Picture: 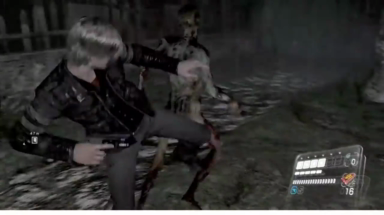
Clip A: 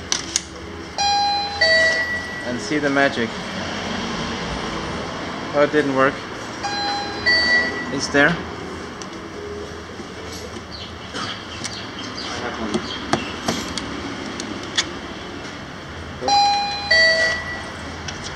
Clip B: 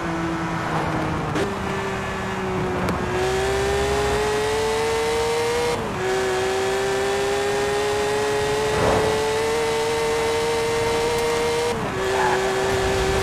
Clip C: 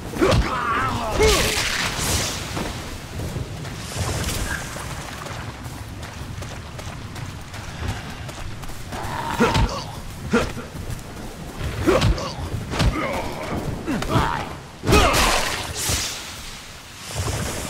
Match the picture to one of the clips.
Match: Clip C